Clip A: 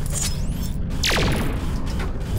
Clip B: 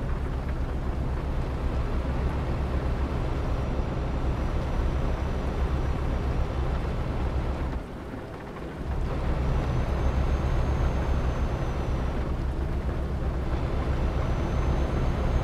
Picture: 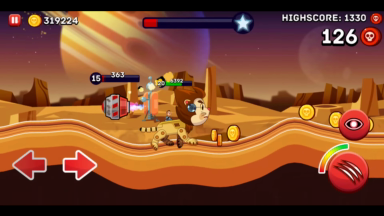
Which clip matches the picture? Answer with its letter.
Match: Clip A